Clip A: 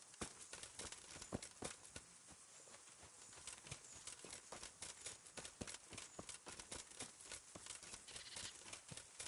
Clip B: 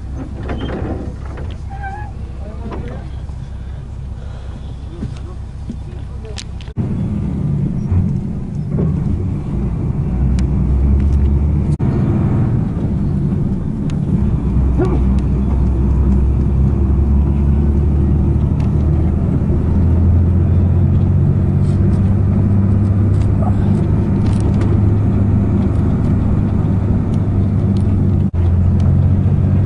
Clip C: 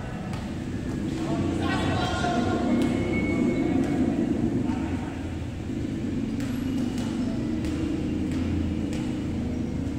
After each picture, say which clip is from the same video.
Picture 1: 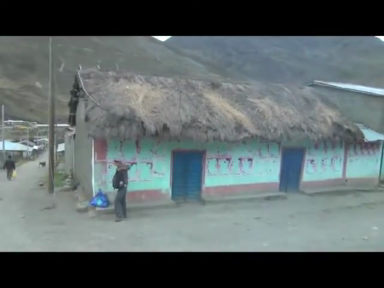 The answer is B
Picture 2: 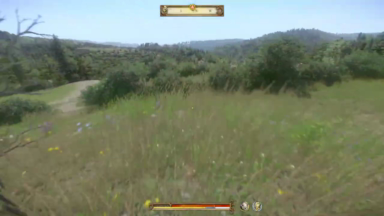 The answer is A